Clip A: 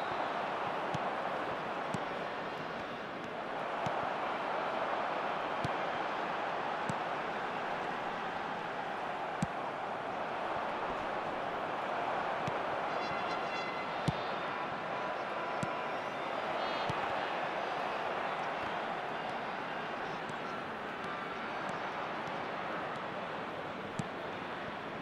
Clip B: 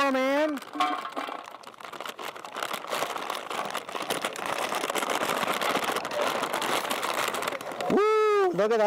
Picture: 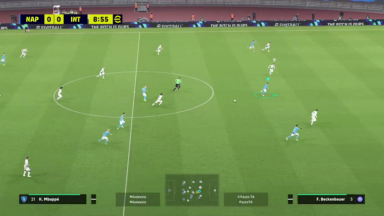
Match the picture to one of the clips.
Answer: A